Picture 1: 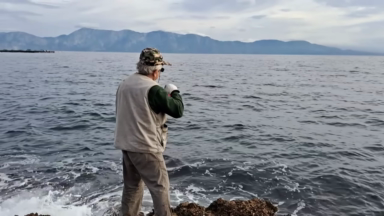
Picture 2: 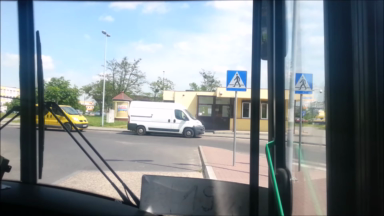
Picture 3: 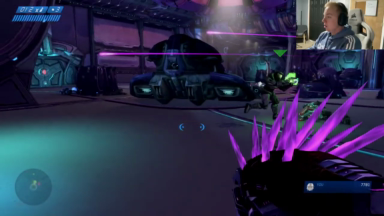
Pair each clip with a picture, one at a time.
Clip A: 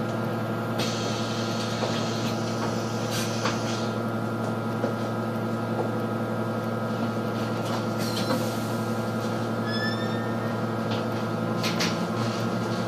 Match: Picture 2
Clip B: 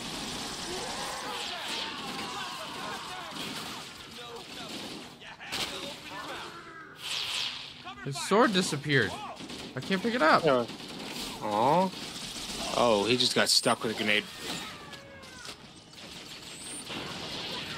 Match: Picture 3